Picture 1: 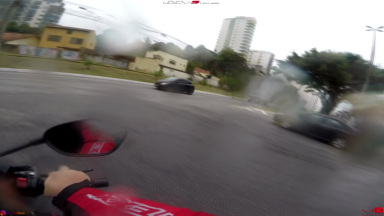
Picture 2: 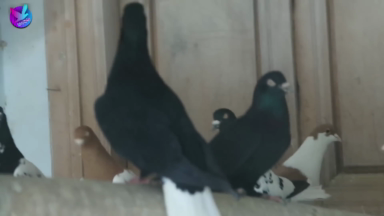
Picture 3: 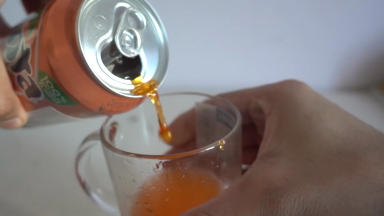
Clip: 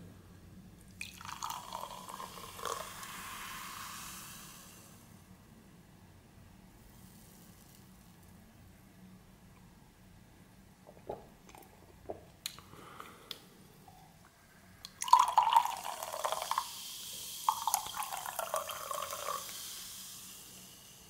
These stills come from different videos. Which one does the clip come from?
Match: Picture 3